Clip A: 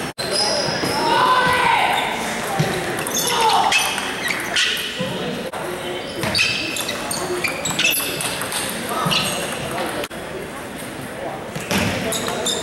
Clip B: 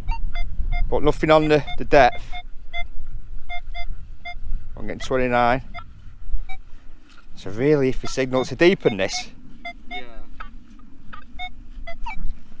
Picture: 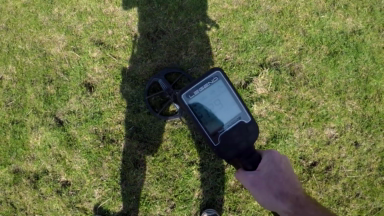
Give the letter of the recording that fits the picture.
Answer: B